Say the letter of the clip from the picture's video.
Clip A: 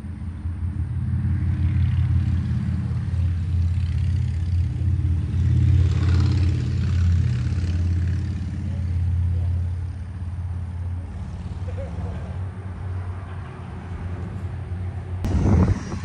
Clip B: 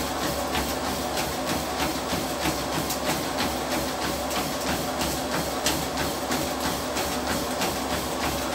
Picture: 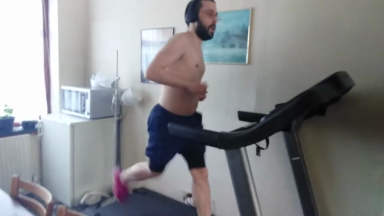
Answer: B